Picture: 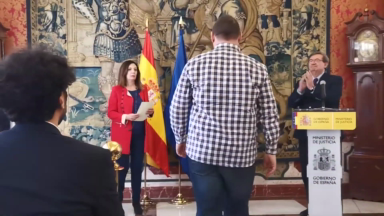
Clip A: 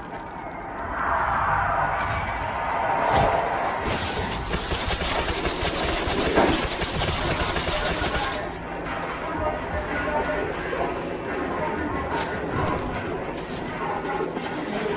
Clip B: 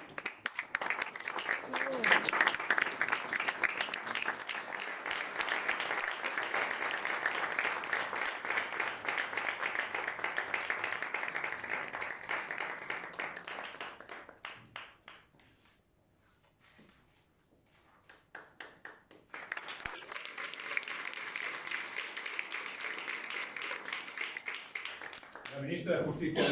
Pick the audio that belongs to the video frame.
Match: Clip B